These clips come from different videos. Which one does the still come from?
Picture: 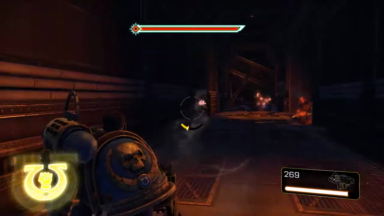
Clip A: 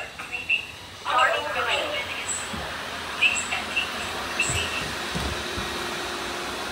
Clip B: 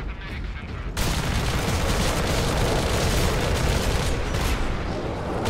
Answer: B